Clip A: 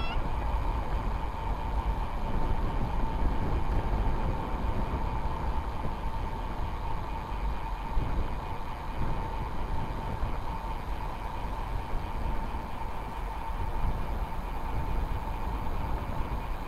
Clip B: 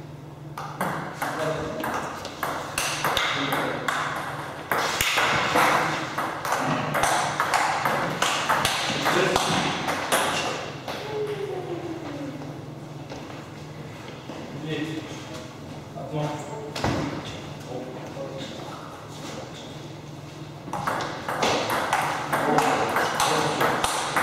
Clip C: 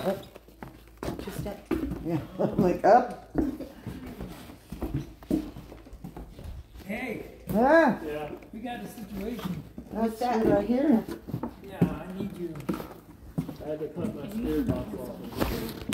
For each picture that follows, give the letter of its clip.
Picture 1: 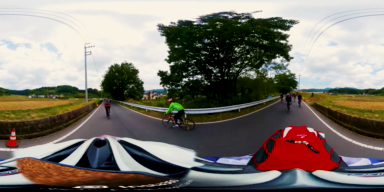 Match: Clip A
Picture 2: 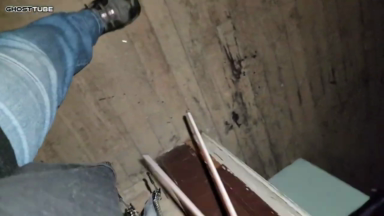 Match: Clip C